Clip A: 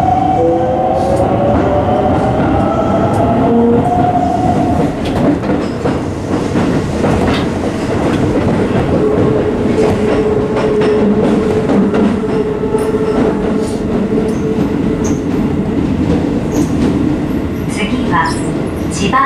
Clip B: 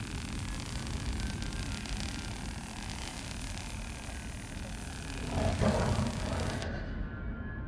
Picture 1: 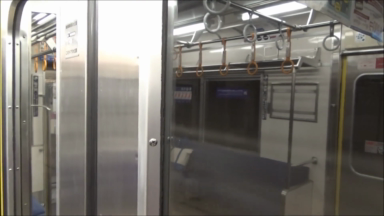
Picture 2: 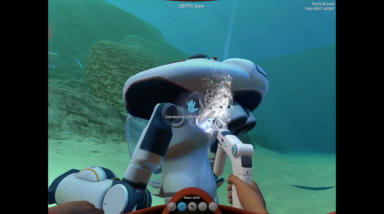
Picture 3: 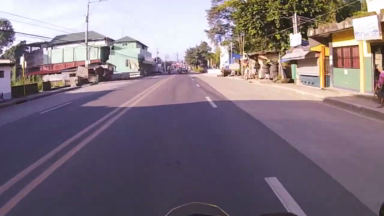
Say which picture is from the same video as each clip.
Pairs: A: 1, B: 2